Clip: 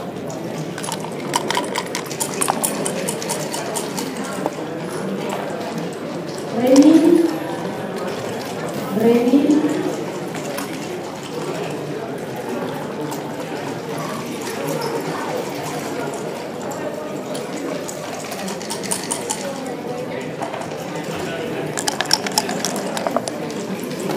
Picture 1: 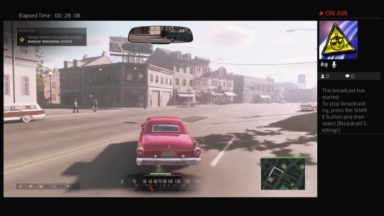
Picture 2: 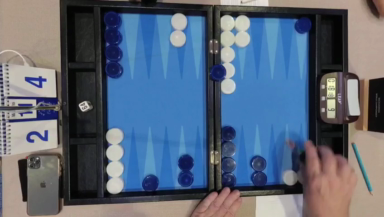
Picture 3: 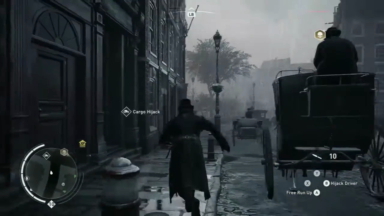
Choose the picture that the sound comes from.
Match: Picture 2